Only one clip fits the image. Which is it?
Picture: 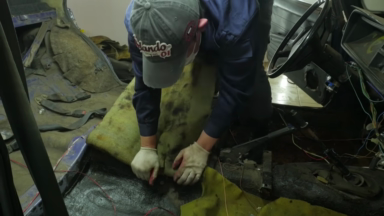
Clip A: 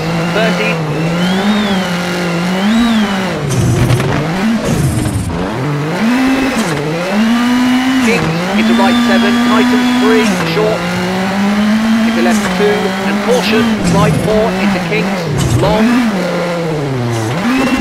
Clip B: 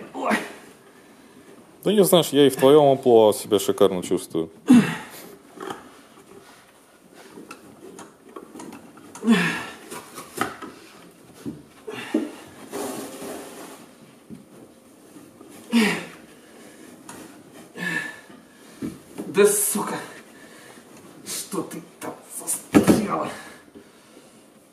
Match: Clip B